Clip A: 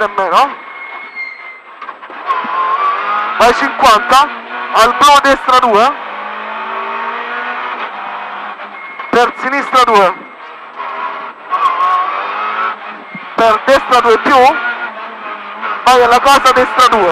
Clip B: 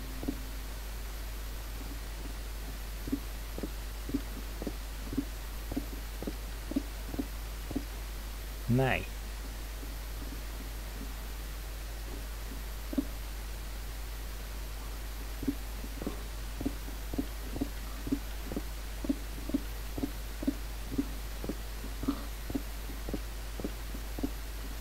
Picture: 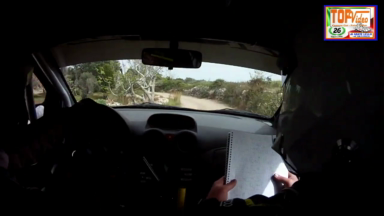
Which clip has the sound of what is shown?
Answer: A